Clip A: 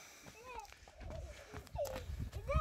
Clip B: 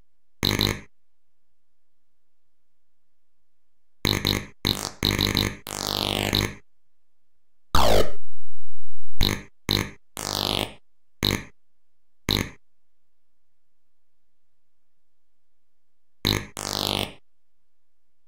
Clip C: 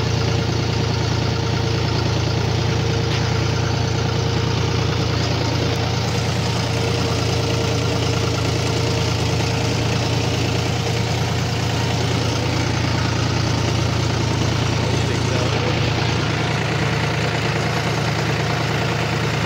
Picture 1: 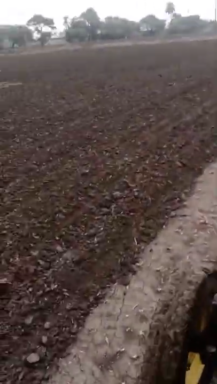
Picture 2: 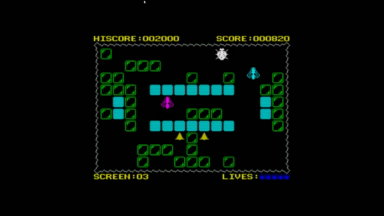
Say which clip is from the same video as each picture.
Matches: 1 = C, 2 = B